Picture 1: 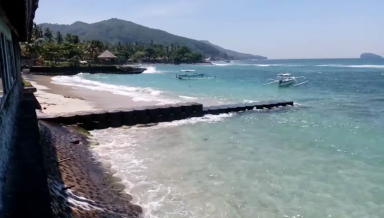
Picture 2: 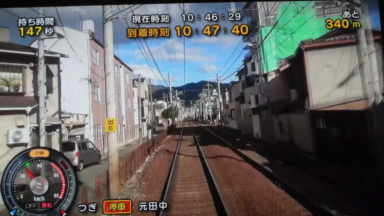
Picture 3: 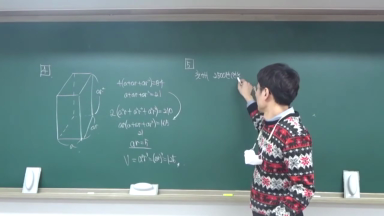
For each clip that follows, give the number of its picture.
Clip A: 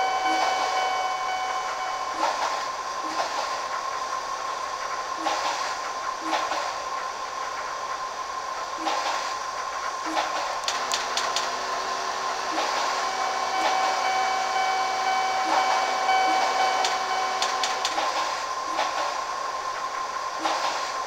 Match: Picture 2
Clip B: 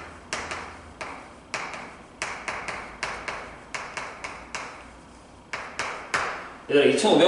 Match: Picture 3